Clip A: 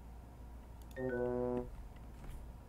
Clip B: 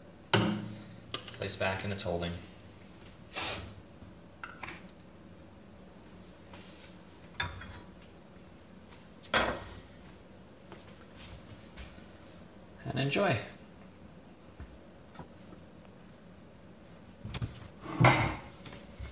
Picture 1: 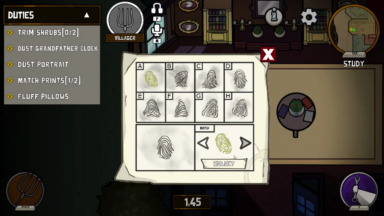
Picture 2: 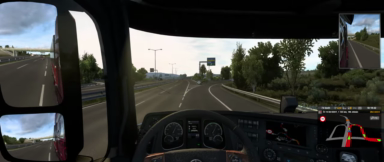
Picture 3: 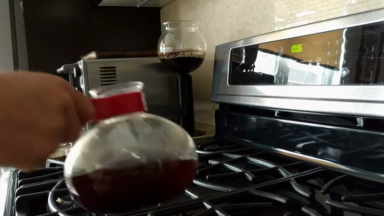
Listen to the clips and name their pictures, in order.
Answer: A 1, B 3